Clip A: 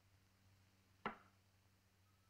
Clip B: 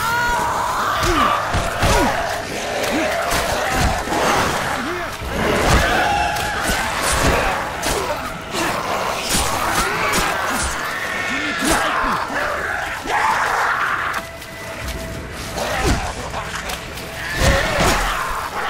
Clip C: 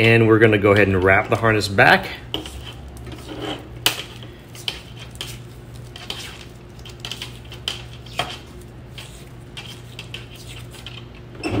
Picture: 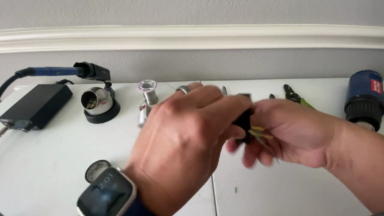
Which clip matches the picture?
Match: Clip C